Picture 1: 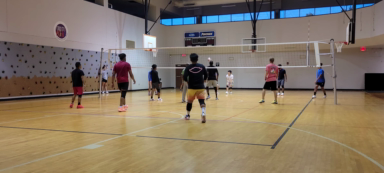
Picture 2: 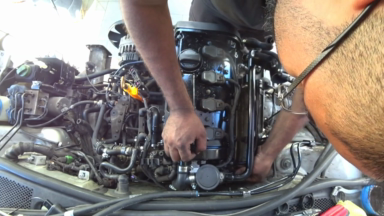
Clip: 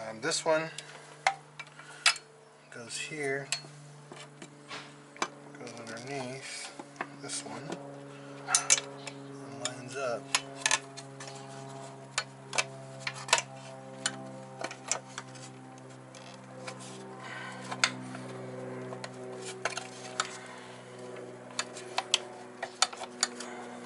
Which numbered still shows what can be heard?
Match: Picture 2